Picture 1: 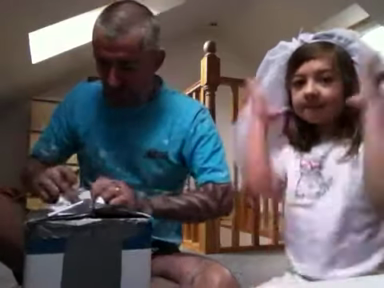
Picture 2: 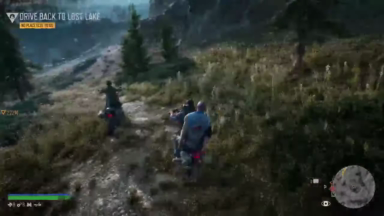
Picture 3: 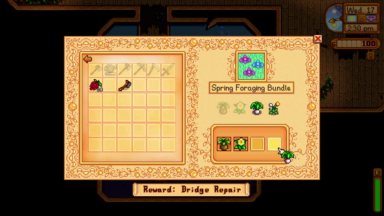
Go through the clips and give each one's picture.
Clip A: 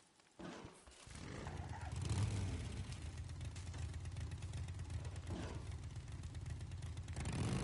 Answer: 2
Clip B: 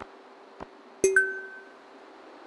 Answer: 3